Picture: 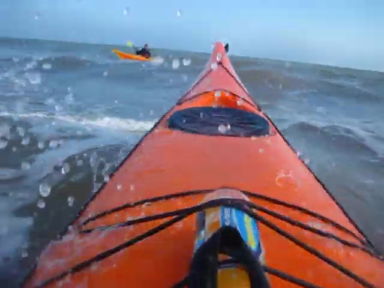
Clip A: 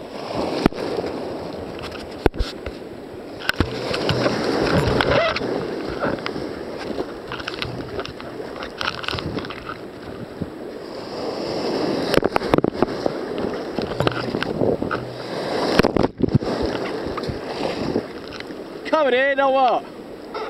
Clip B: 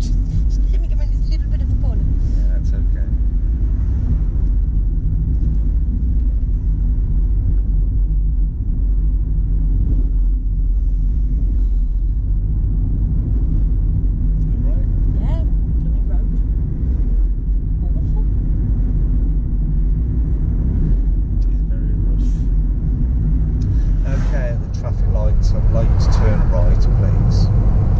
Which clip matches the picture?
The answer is A